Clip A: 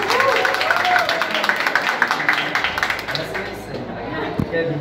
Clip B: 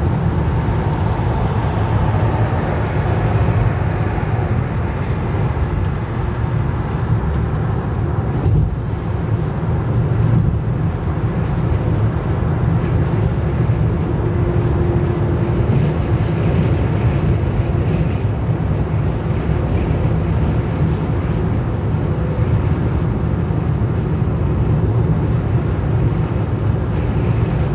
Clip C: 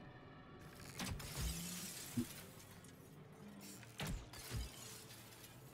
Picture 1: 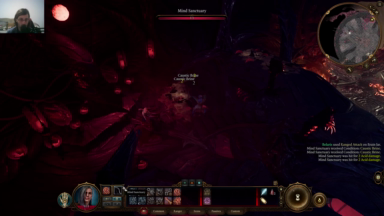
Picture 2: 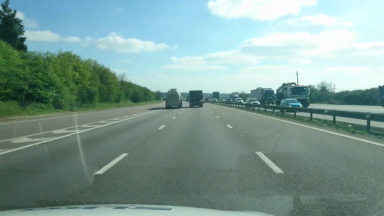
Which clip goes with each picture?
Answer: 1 C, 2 B